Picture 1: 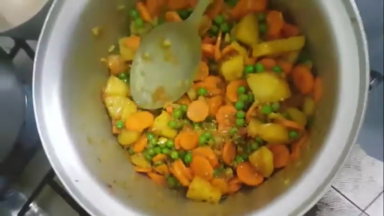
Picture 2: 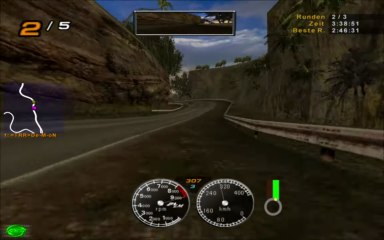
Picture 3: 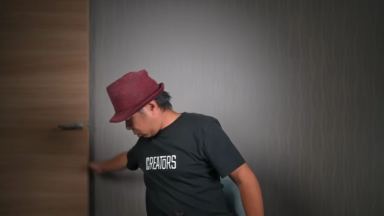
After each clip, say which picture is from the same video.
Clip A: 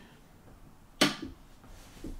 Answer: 3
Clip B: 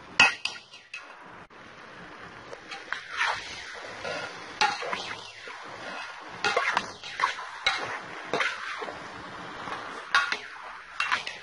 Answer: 1